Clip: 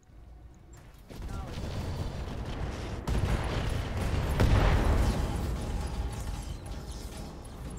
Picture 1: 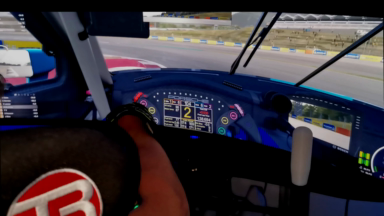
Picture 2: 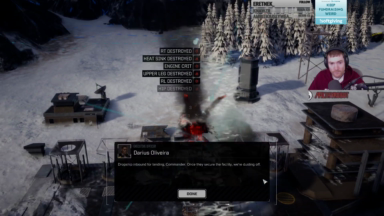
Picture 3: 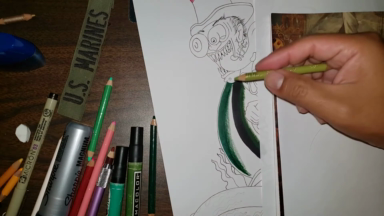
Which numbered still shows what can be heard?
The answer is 2